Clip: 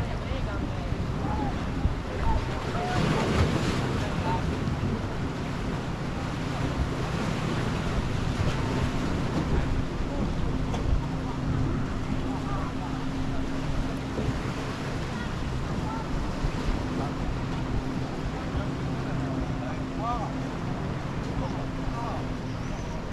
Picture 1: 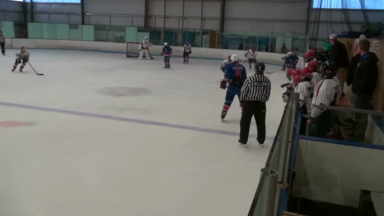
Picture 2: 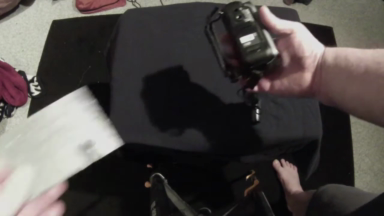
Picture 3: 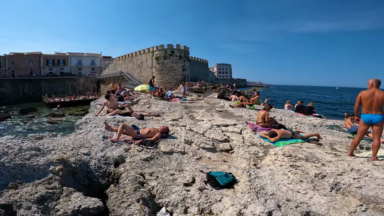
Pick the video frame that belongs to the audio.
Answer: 3